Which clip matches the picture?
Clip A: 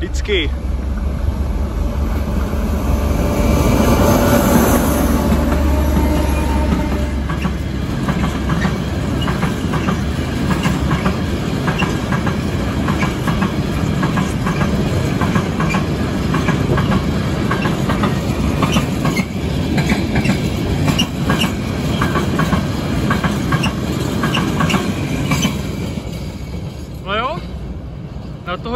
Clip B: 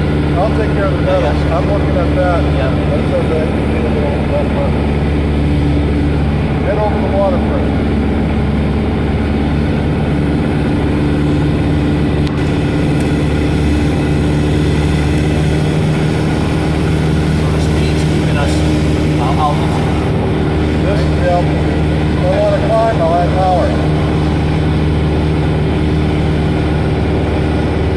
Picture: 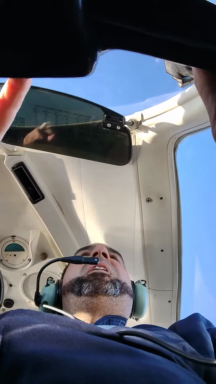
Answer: B